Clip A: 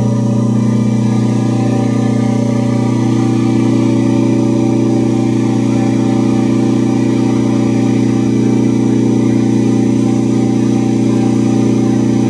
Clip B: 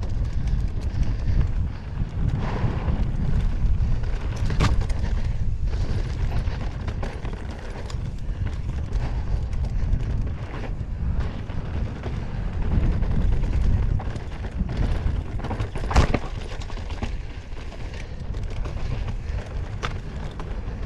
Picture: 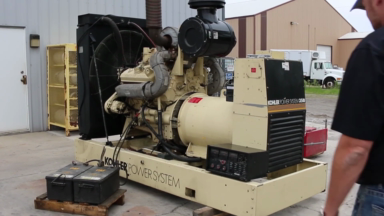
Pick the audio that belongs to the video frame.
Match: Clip A